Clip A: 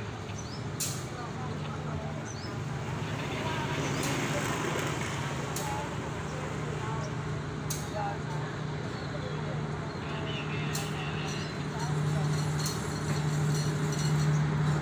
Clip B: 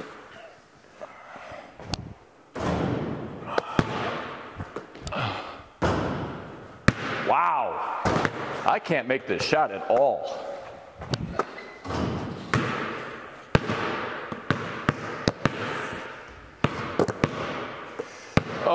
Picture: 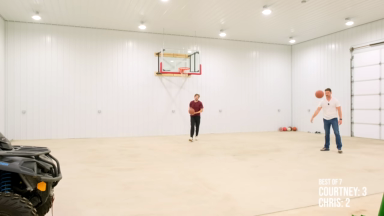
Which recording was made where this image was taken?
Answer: B